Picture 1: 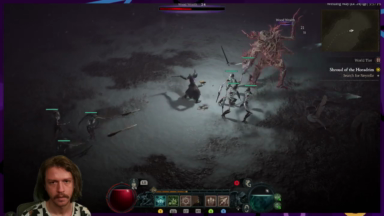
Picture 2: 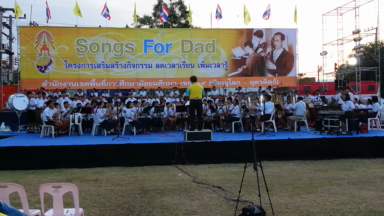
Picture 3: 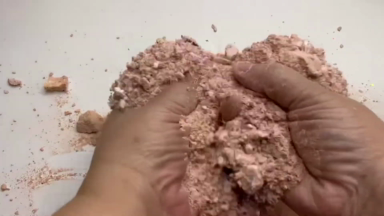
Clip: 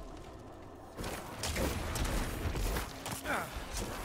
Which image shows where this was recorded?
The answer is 1